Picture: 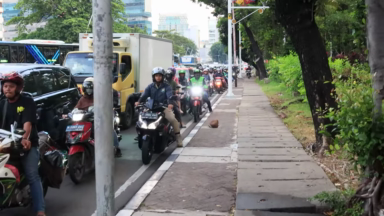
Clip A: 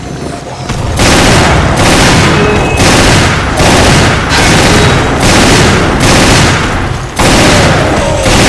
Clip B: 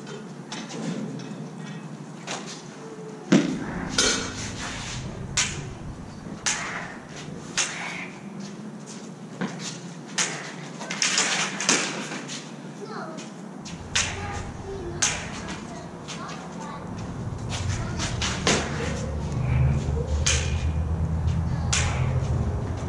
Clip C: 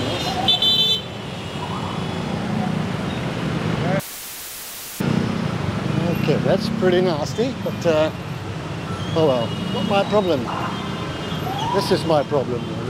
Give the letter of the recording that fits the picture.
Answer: C